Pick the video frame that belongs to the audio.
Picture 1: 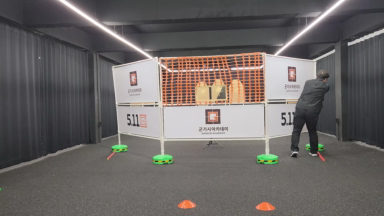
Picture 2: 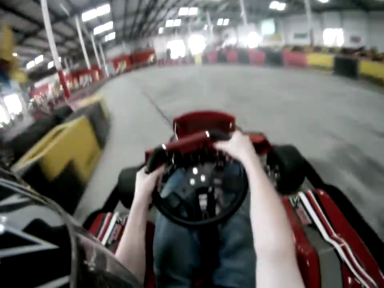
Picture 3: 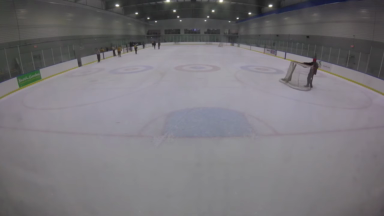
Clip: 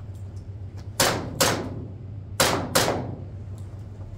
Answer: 1